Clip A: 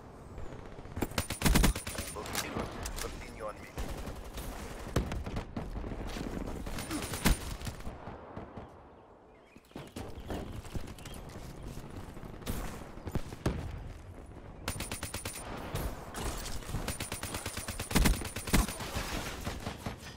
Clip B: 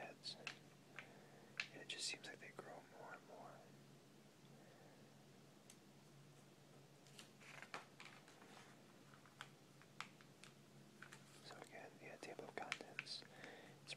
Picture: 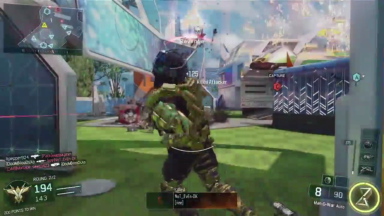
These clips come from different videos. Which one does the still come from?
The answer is A